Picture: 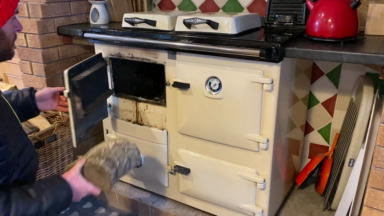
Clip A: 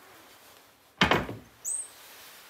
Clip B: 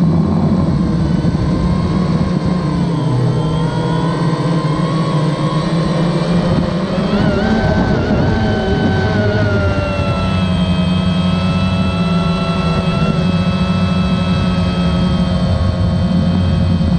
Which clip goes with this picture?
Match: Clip A